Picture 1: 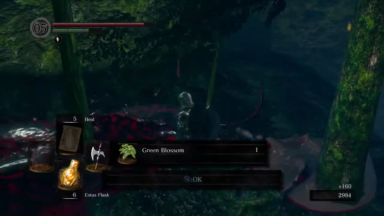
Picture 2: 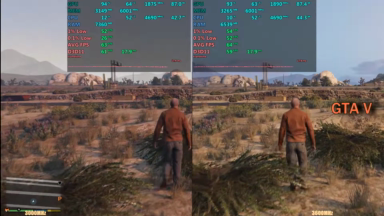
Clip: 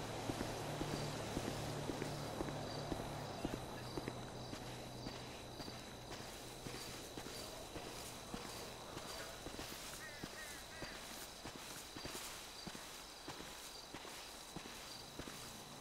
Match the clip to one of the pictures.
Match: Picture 2